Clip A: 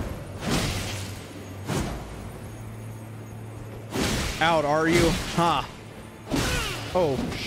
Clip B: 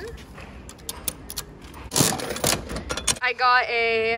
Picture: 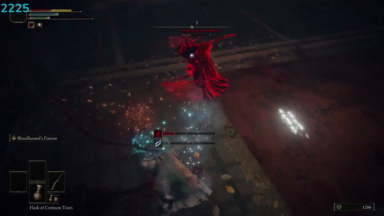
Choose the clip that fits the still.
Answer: A